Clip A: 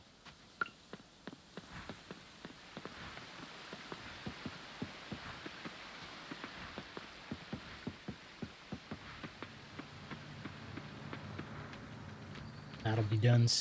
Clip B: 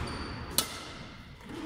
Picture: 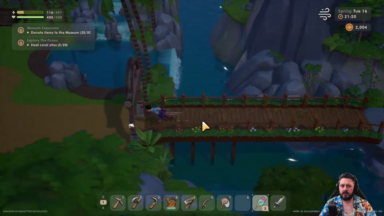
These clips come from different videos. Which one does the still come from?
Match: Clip A